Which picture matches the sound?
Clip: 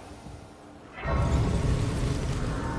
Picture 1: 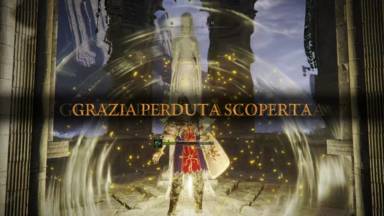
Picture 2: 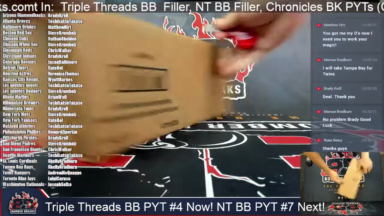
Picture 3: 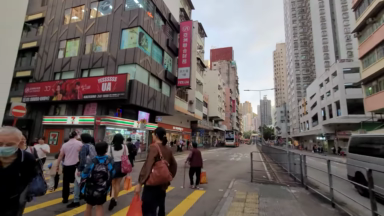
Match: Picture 1